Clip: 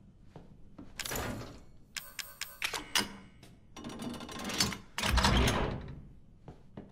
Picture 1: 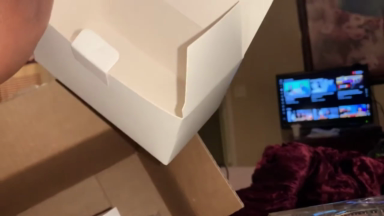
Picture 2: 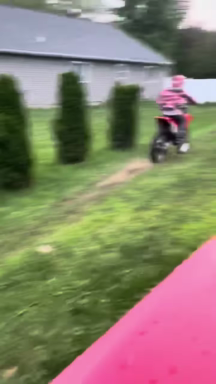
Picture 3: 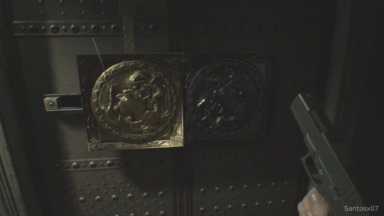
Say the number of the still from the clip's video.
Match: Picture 3